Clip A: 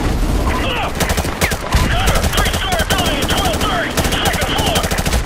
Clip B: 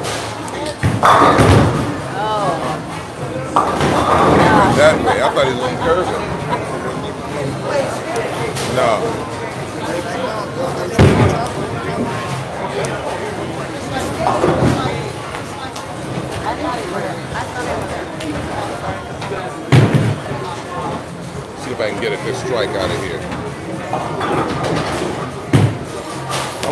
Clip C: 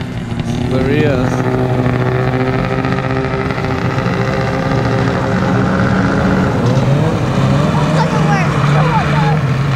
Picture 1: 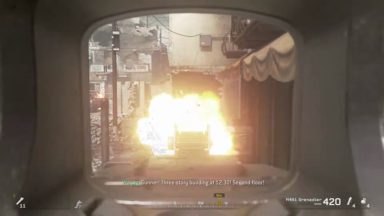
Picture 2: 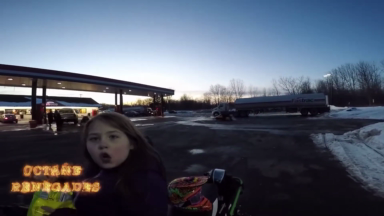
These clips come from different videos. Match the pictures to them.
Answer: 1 A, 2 C